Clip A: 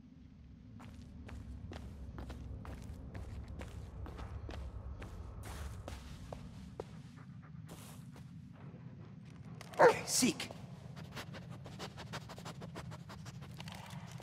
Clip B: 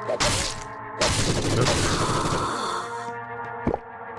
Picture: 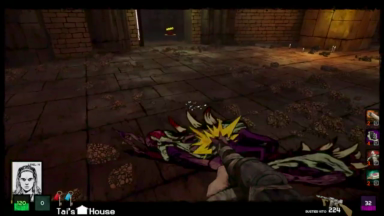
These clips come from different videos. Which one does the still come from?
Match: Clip B